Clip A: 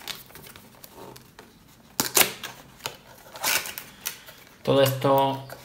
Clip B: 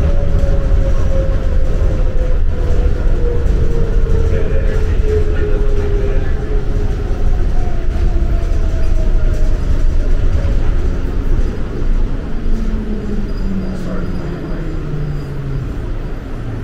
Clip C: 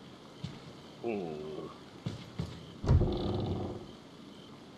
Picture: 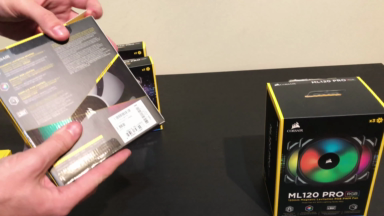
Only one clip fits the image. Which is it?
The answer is A